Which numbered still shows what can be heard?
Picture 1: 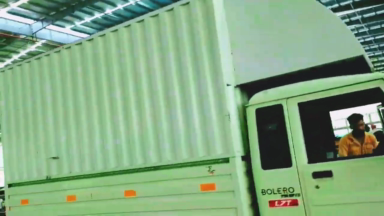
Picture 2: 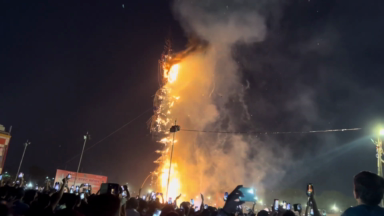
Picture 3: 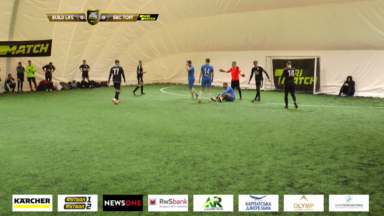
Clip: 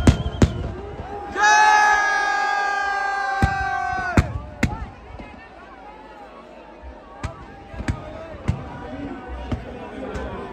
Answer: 2